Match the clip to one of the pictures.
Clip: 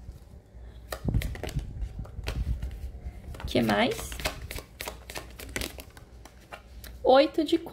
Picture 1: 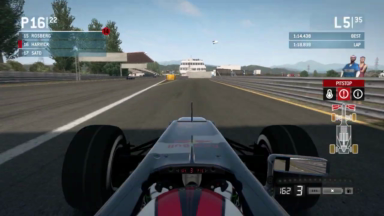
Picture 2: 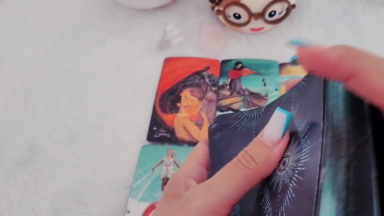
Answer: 2